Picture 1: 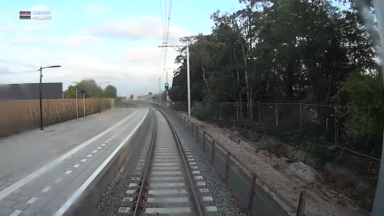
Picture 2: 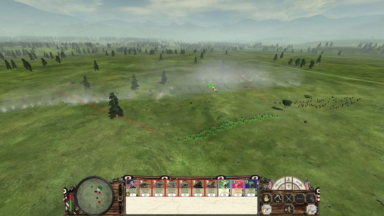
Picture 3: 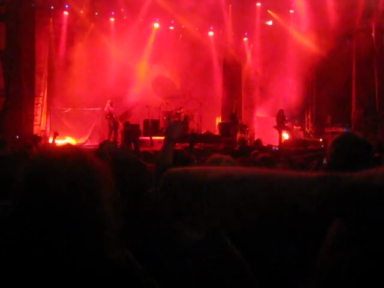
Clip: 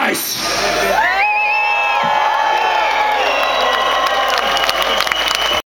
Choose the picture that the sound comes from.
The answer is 3